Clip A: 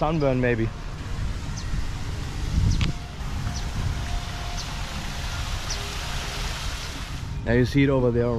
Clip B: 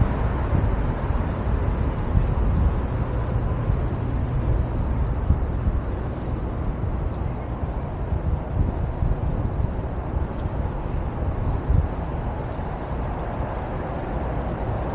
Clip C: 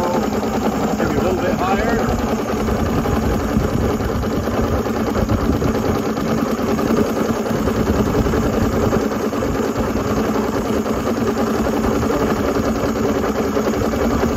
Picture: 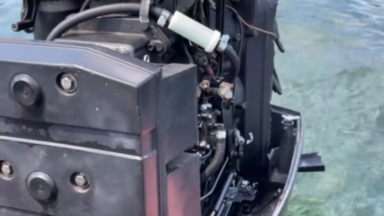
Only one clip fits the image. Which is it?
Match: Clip C